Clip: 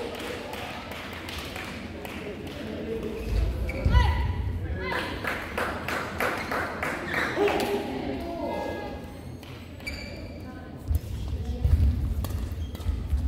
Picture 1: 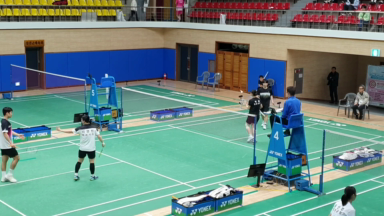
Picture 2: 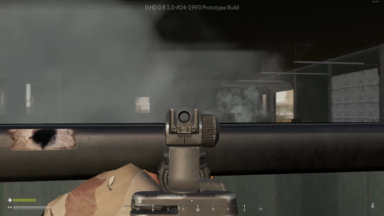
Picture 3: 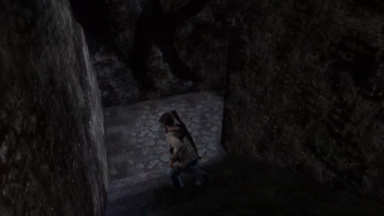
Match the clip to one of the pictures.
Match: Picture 1